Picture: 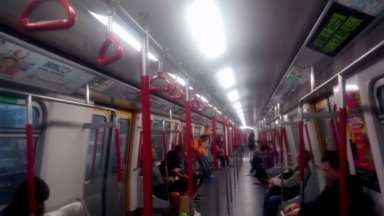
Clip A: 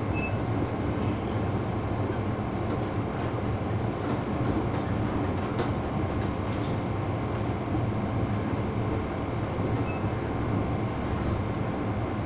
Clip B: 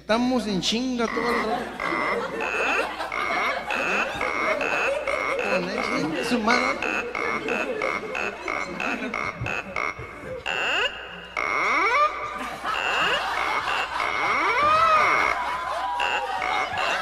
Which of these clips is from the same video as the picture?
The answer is A